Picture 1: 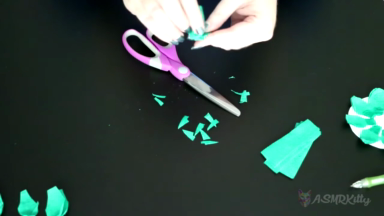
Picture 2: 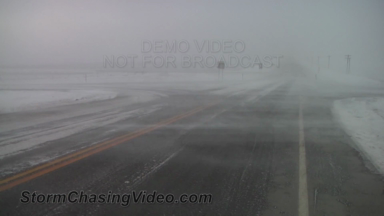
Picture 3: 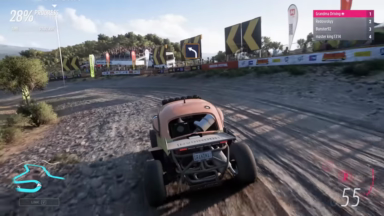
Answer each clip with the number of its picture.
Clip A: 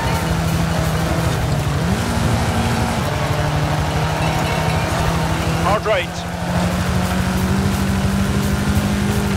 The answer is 3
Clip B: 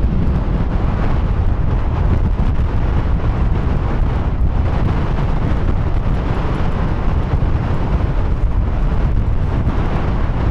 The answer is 2